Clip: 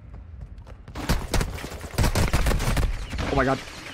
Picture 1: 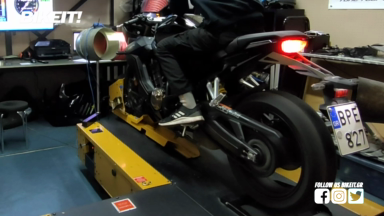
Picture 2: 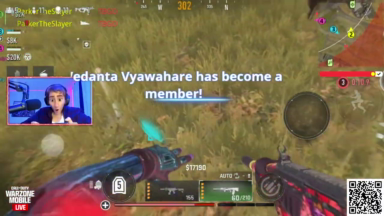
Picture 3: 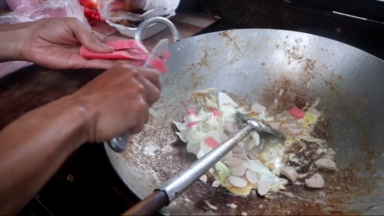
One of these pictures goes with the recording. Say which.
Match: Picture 2